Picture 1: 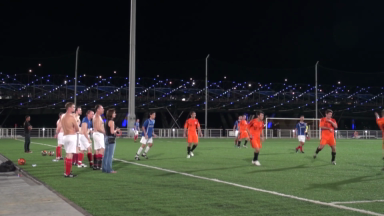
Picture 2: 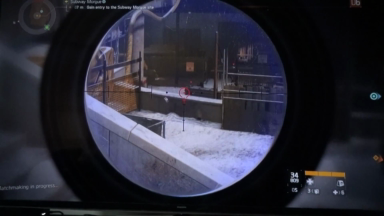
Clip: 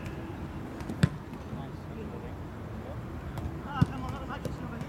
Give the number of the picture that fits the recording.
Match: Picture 1